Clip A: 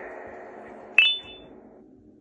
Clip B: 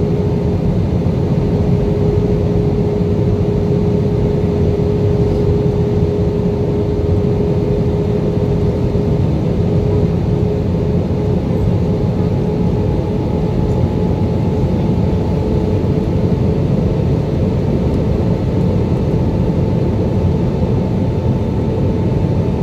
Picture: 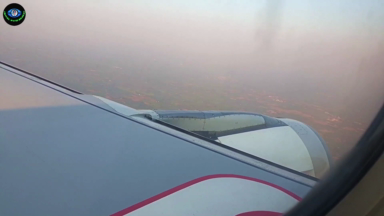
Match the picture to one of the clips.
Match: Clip B